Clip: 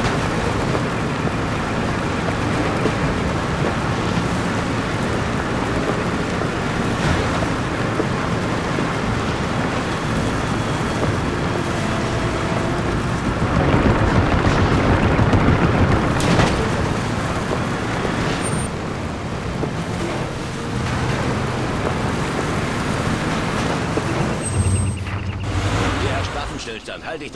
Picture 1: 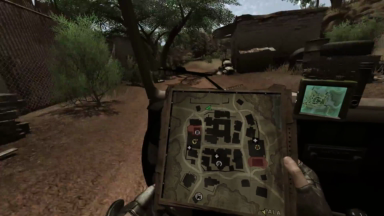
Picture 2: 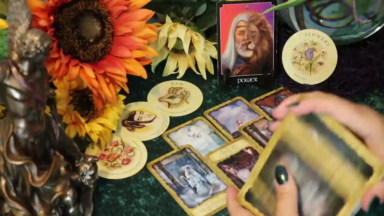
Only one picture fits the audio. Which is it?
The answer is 1